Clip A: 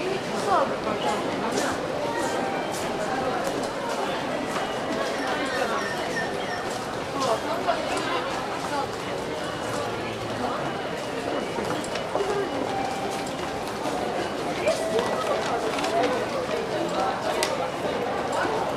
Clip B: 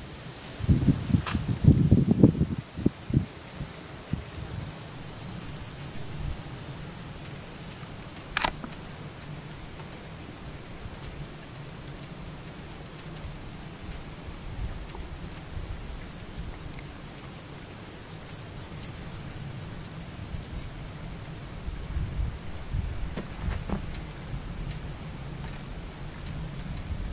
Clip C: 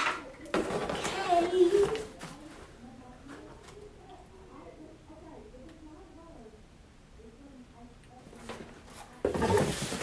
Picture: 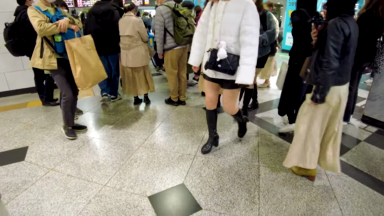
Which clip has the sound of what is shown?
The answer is A